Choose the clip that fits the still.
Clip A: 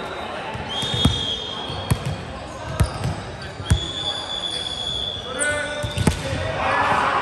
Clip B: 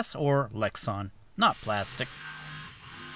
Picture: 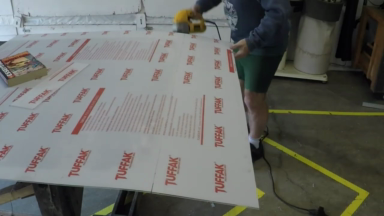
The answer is B